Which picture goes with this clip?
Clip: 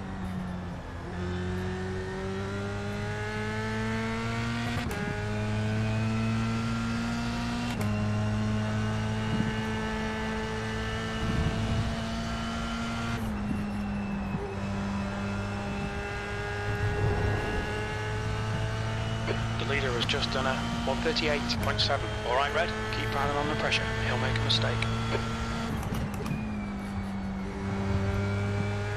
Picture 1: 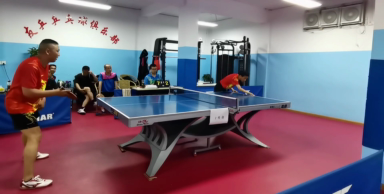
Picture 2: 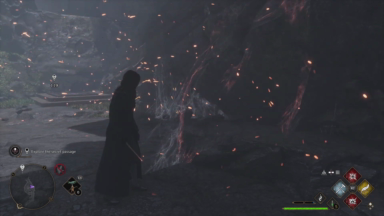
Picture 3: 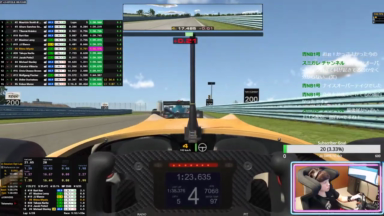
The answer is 3